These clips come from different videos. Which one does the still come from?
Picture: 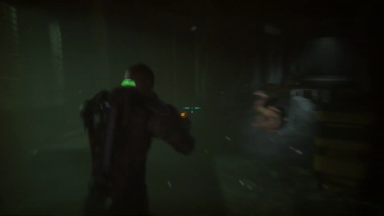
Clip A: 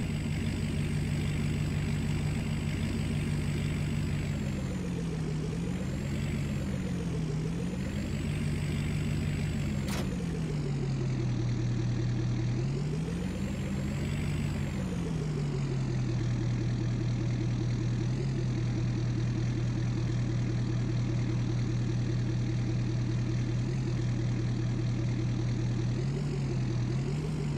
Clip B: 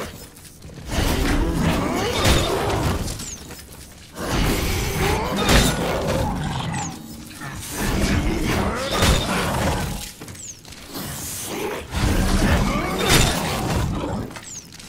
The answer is B